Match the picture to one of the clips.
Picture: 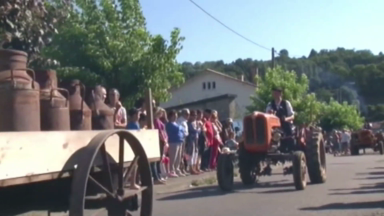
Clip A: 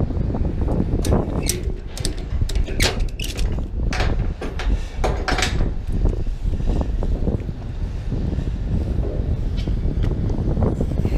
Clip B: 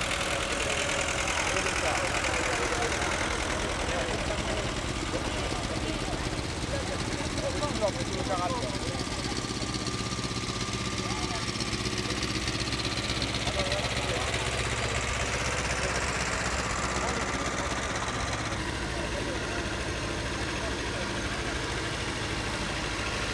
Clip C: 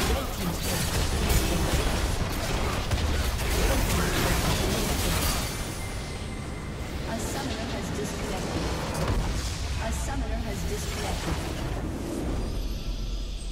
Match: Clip B